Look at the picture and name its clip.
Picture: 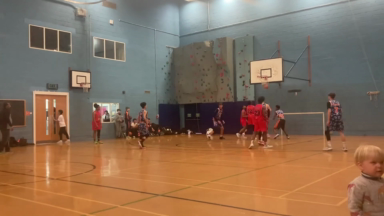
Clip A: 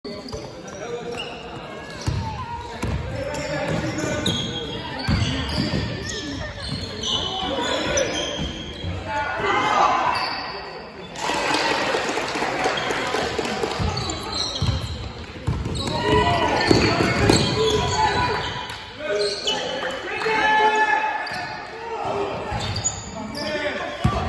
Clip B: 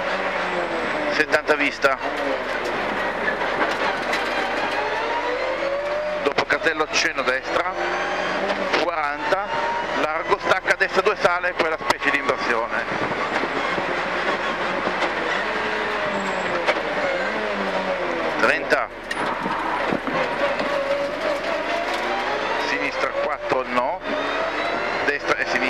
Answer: A